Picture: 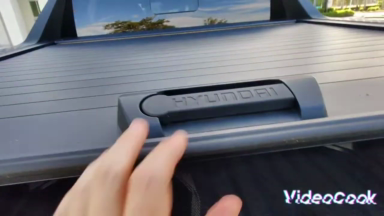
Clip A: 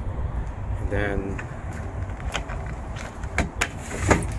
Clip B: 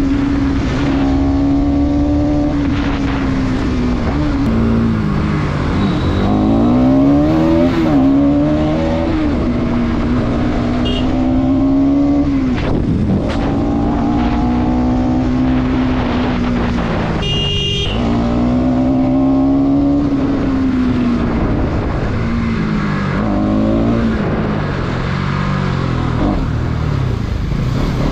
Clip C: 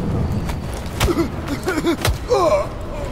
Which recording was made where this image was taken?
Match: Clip A